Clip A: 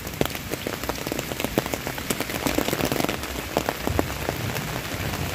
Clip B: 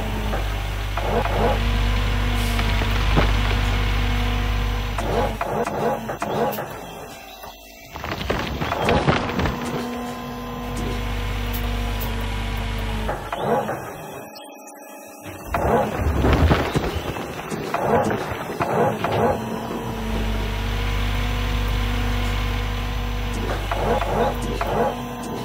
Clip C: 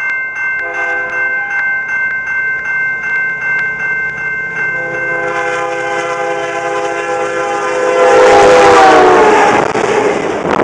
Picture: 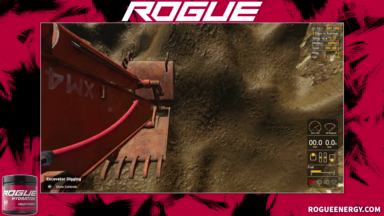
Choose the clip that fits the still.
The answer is B